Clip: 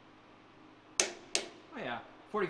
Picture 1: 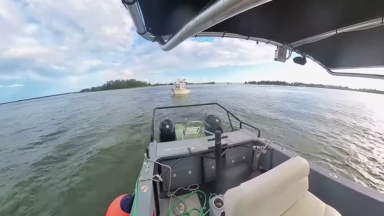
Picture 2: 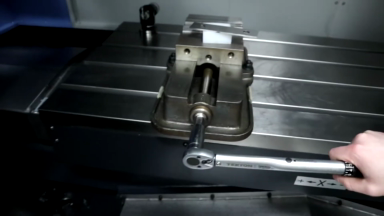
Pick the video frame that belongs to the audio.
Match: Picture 2